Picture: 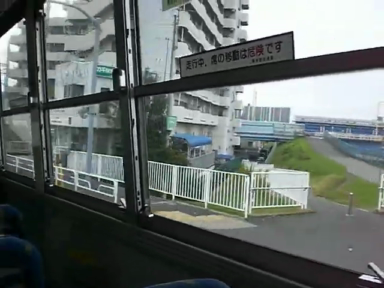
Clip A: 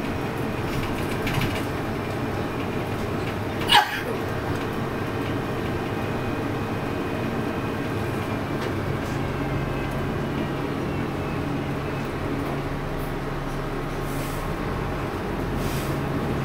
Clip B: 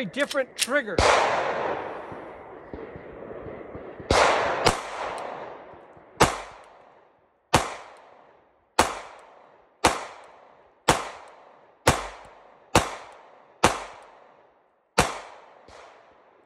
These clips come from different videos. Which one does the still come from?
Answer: A